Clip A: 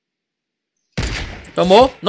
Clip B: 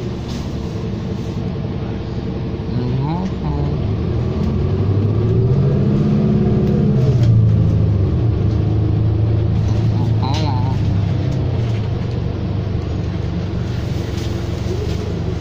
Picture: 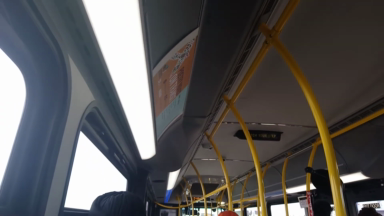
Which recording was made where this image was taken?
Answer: B